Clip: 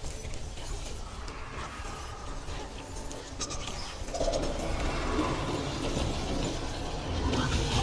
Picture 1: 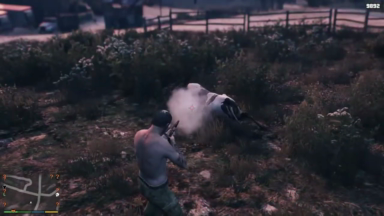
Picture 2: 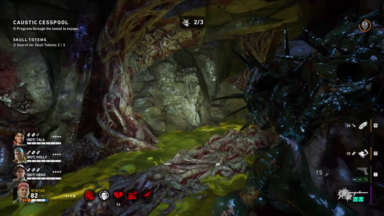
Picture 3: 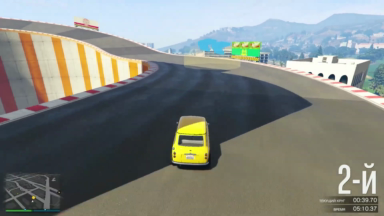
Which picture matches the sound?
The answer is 2